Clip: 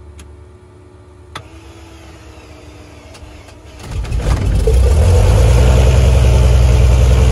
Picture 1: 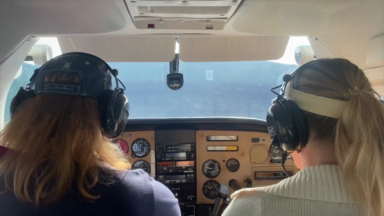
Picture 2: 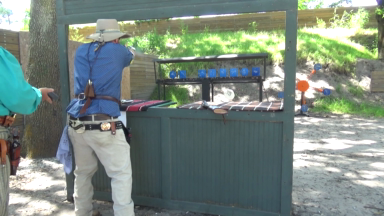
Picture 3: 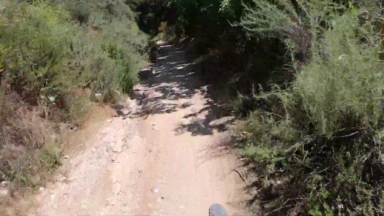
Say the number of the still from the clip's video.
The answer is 1